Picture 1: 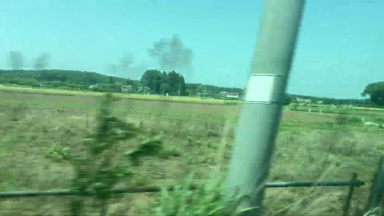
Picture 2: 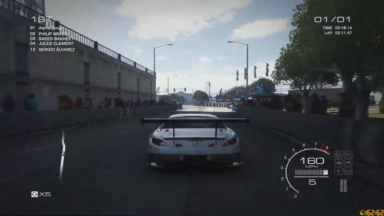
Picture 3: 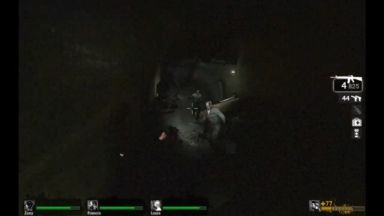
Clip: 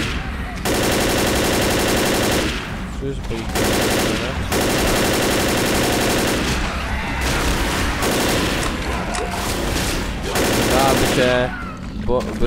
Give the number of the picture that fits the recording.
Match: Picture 3